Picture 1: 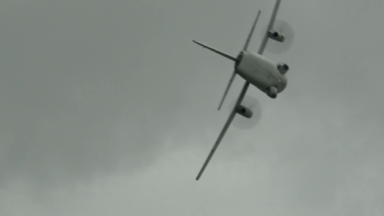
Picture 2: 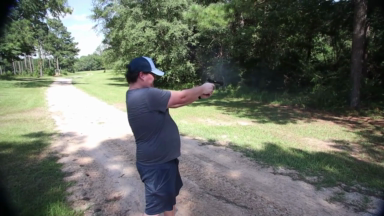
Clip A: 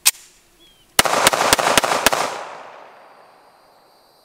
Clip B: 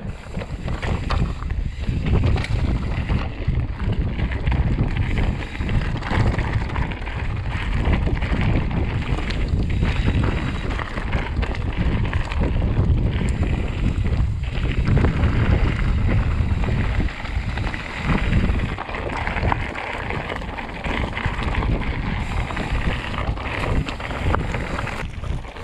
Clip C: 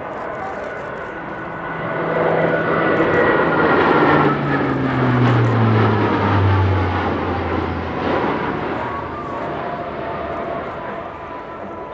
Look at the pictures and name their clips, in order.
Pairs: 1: C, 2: A